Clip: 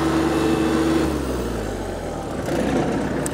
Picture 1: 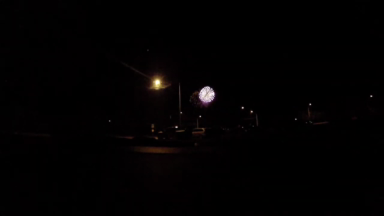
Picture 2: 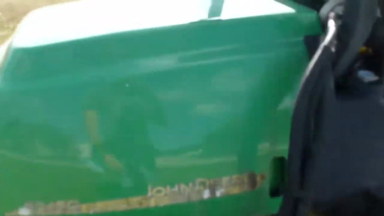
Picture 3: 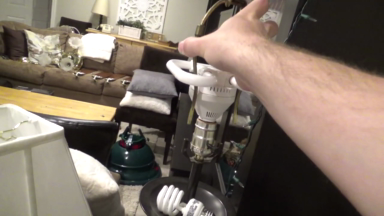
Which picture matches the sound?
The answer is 2